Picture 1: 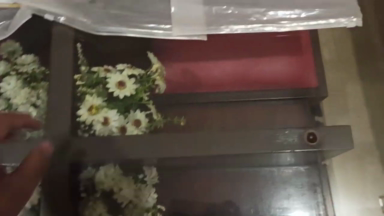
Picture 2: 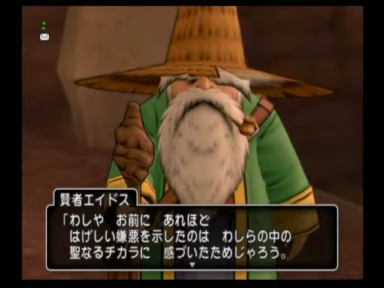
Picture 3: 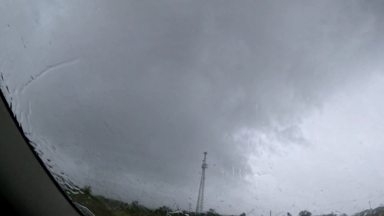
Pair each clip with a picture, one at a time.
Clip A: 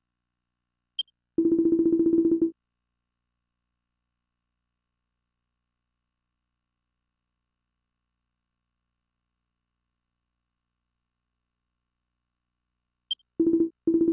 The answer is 2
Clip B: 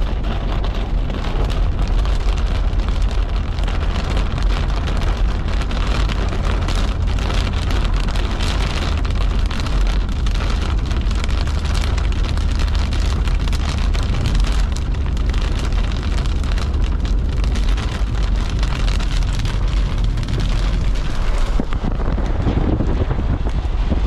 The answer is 3